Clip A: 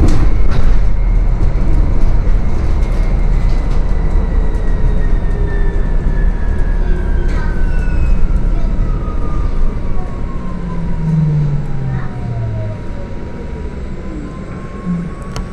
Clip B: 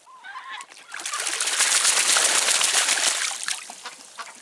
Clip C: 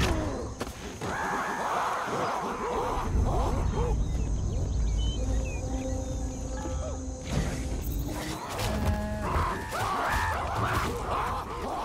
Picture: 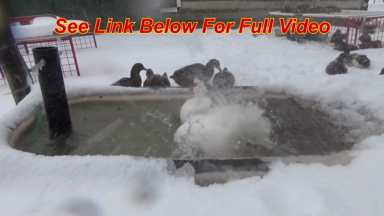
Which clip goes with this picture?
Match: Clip B